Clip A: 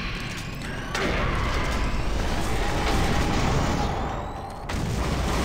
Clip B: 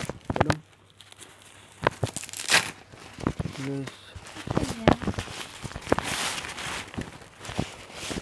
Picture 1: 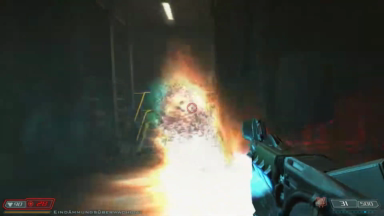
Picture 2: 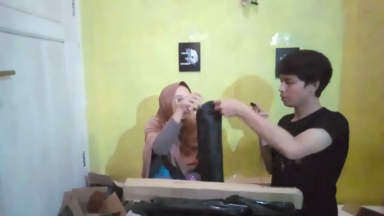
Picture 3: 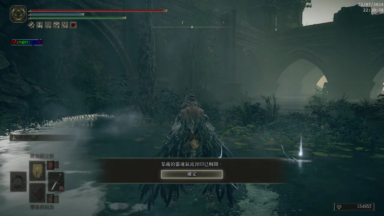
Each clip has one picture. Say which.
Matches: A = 1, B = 2